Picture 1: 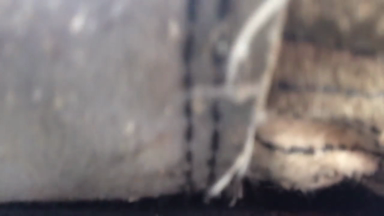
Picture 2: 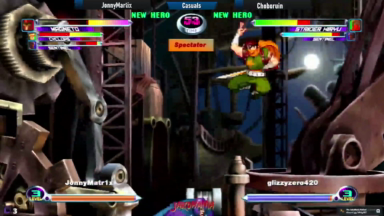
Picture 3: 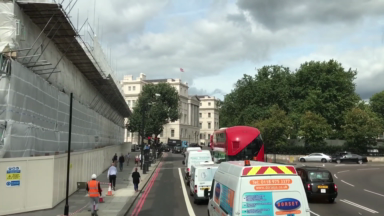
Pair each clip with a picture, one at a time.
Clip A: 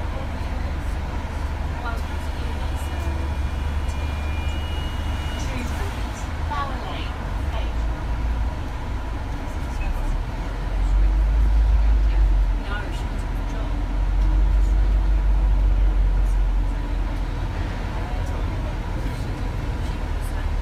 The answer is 3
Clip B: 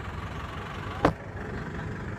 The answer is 1